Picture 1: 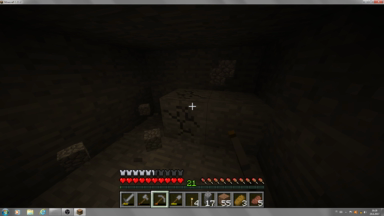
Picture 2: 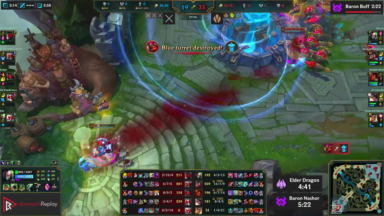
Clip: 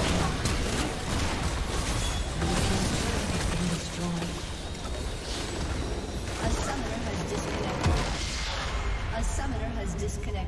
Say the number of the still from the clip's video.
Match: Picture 2